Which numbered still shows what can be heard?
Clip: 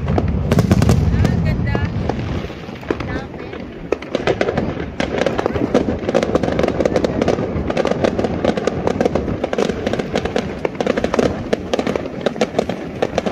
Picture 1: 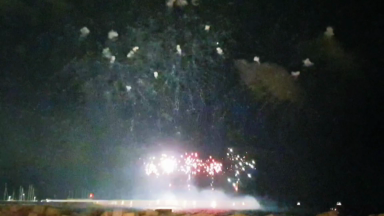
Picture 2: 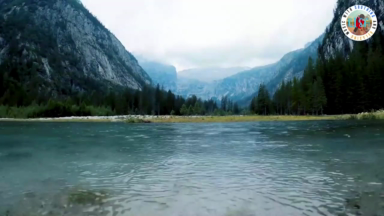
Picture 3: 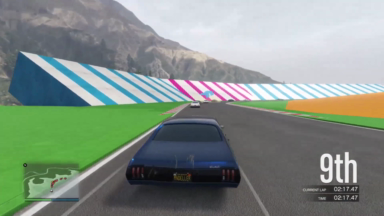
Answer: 1